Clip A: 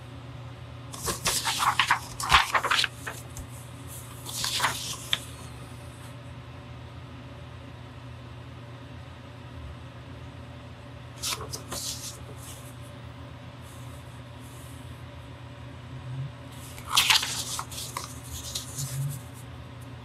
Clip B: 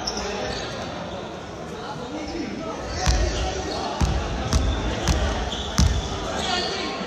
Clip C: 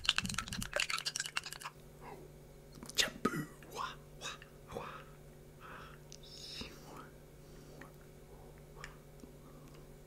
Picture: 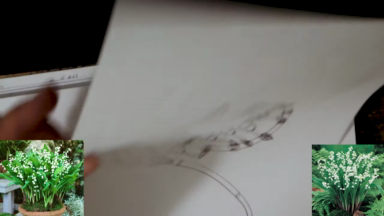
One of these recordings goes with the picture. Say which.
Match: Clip A